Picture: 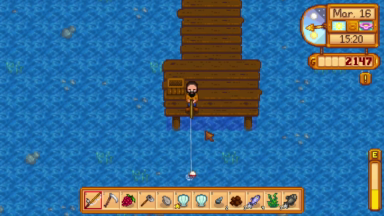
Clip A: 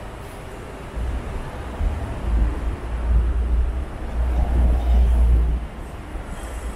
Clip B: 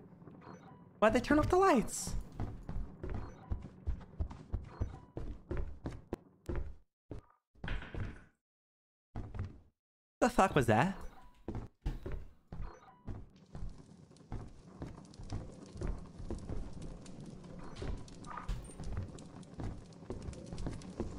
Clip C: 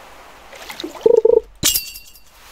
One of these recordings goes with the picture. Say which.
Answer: C